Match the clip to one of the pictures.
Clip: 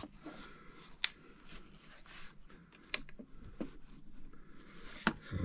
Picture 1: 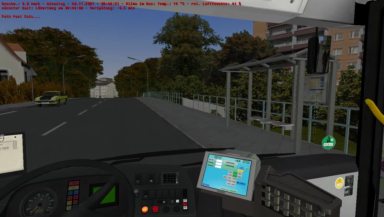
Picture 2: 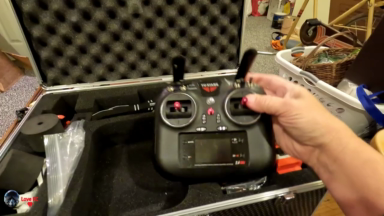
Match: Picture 2